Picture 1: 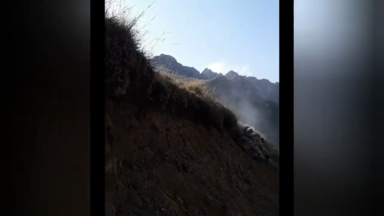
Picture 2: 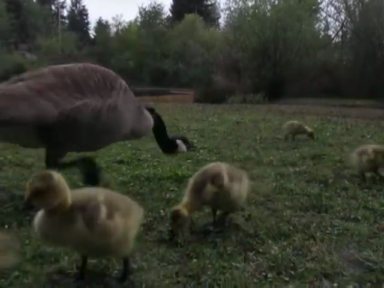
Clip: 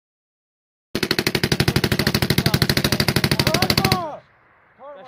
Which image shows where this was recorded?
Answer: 1